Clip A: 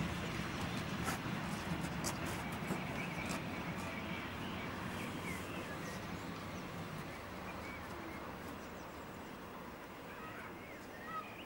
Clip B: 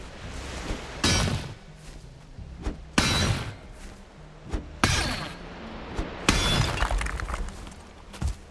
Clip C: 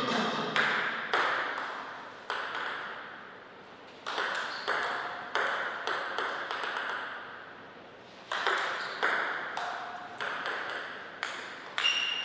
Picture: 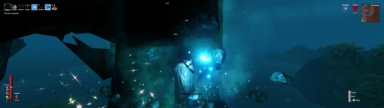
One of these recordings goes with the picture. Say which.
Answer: B